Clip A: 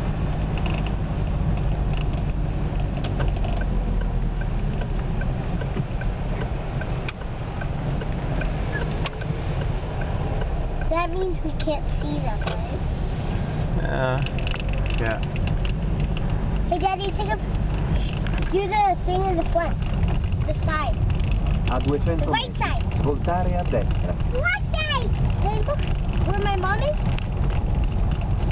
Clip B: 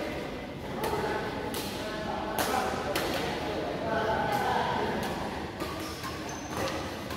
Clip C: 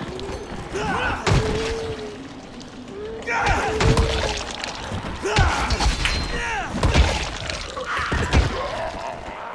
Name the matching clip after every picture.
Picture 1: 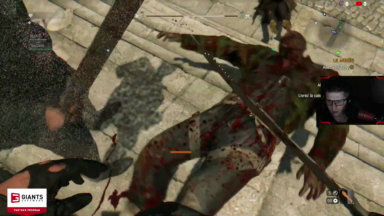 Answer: C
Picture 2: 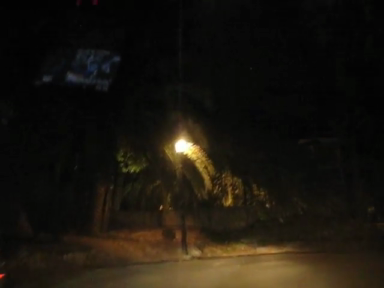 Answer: A